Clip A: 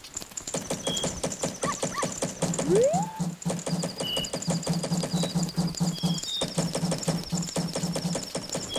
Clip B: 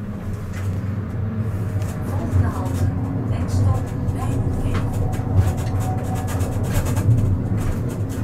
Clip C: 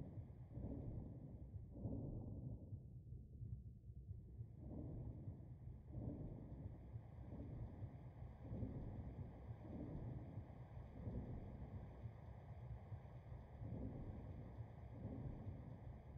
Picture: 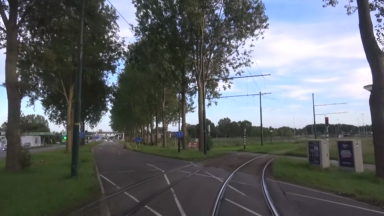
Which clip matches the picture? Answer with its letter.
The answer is B